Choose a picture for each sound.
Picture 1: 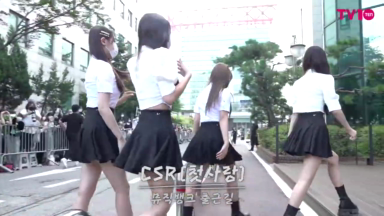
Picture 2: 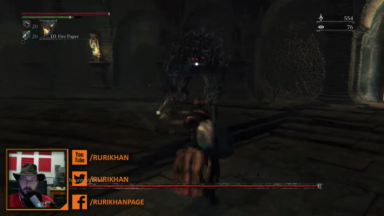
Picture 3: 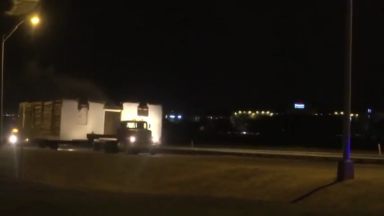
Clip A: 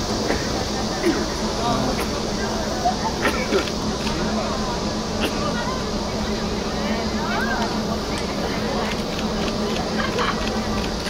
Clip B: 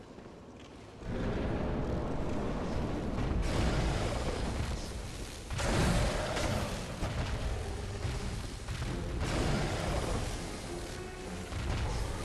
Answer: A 1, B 2